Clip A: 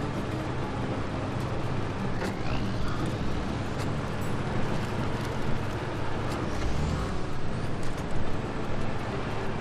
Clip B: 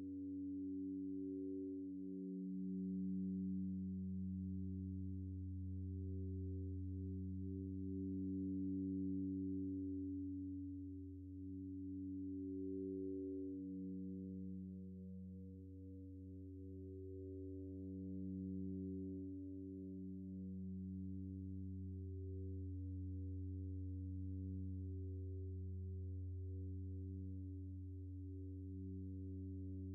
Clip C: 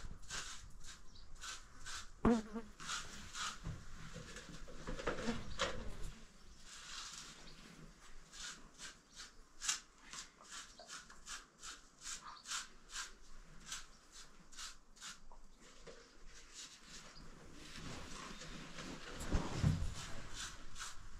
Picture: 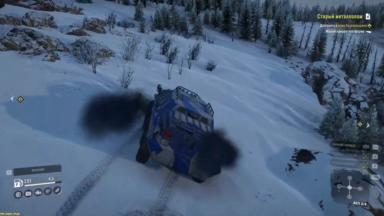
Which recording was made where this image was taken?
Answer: A